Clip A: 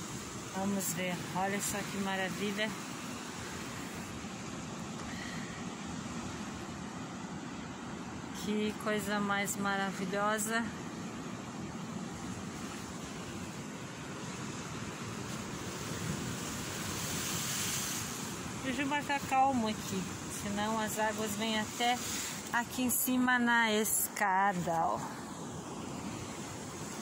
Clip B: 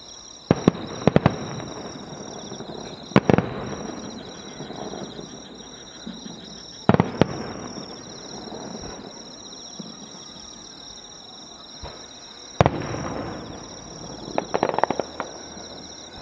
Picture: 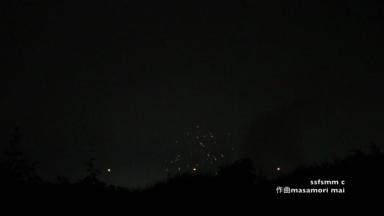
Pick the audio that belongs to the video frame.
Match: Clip B